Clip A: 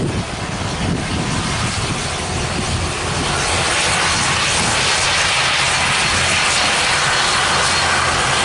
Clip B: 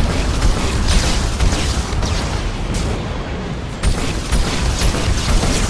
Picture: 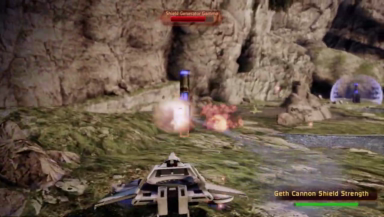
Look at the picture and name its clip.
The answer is B